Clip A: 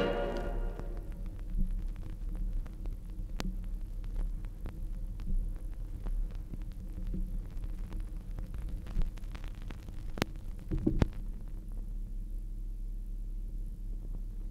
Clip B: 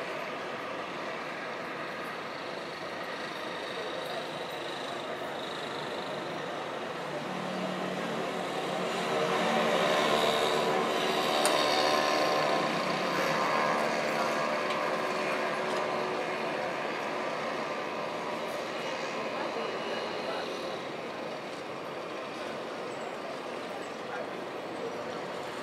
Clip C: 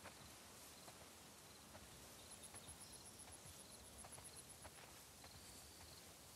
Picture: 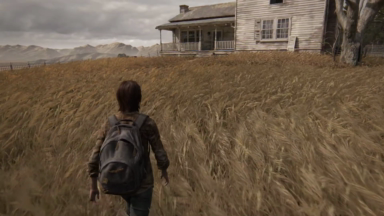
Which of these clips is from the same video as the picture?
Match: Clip C